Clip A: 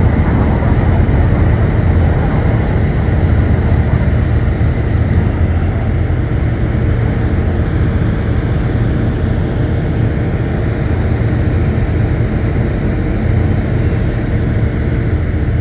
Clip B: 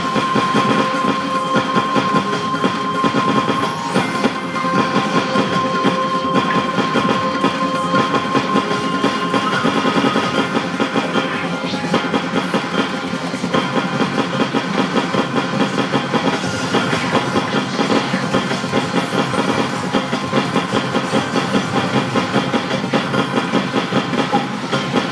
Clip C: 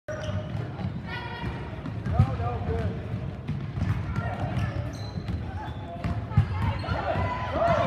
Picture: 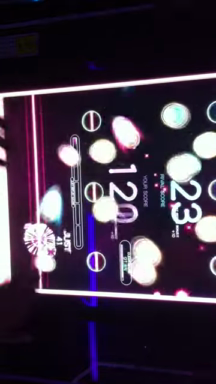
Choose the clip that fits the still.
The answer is B